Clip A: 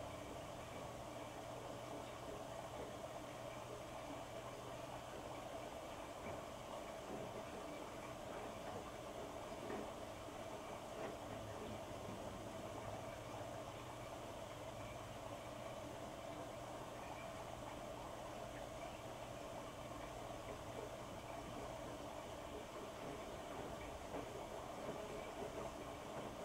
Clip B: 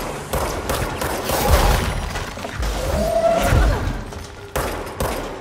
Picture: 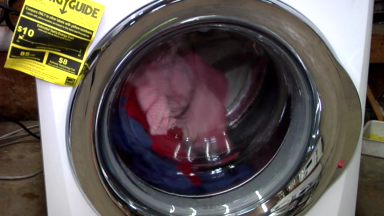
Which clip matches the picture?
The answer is A